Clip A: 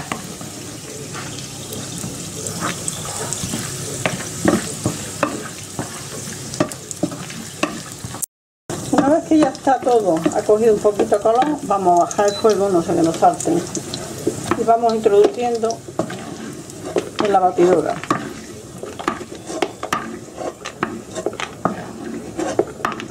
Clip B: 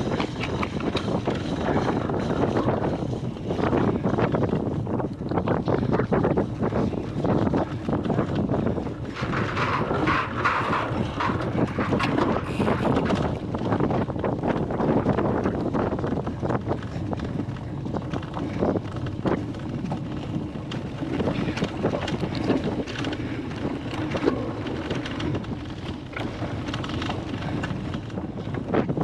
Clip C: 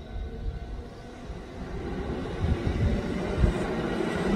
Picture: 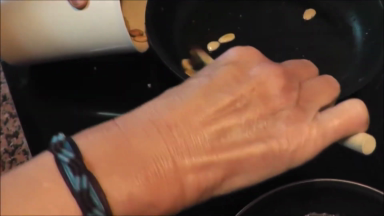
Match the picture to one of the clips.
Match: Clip A